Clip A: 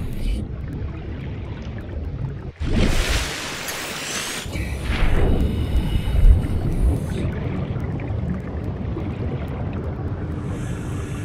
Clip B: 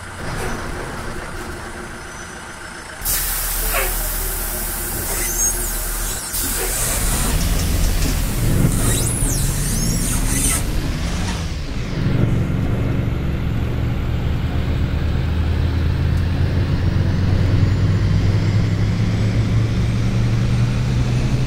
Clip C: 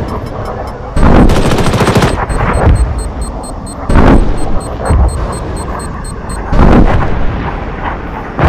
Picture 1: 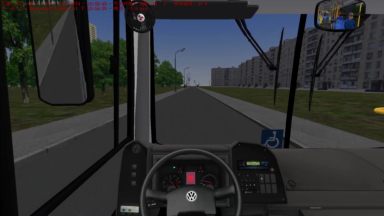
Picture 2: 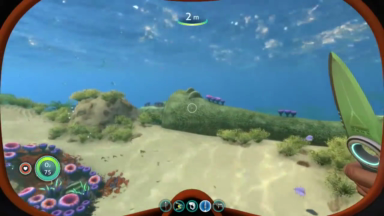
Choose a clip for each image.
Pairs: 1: B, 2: A